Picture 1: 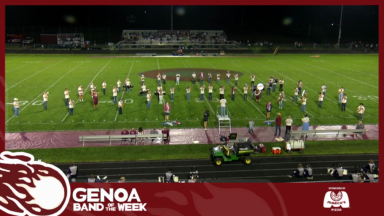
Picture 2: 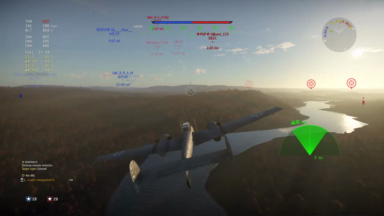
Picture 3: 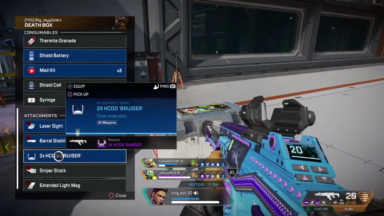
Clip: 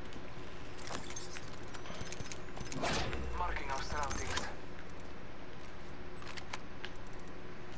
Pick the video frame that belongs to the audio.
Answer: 3